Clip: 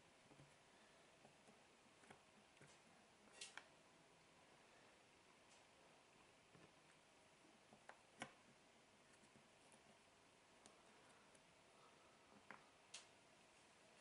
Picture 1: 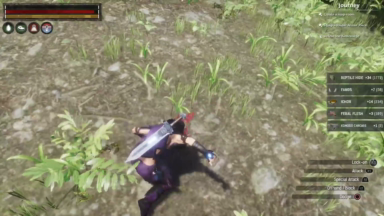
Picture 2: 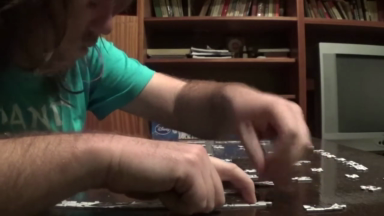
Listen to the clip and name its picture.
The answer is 2